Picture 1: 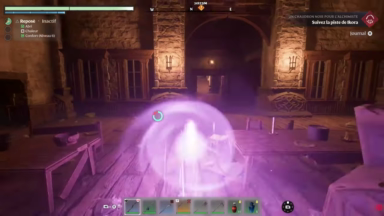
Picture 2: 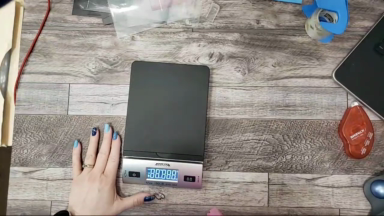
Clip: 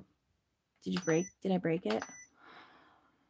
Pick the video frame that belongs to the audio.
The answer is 2